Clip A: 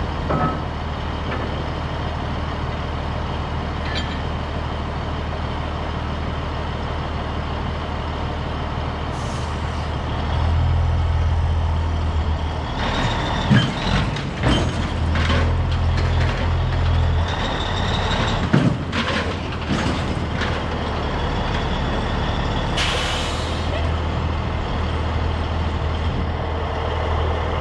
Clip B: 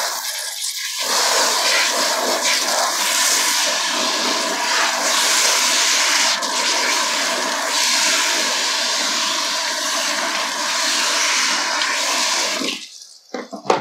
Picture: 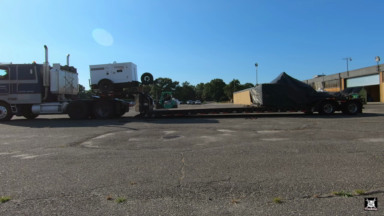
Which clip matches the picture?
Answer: A